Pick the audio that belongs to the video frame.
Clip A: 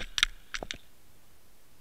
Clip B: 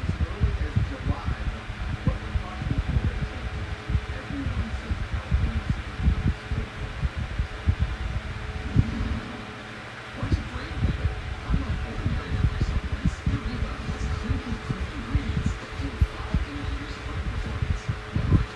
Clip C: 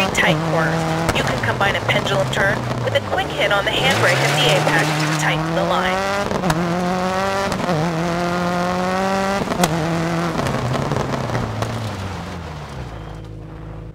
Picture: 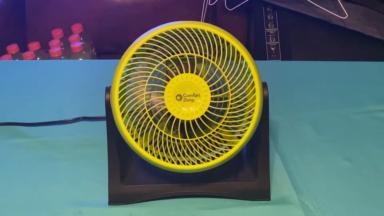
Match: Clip B